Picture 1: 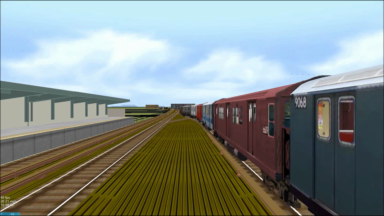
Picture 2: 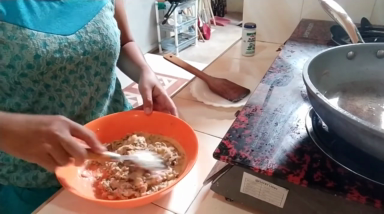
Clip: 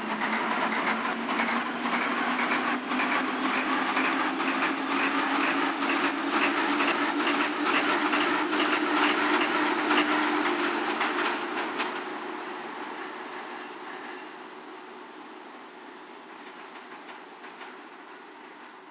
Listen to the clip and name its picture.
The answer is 1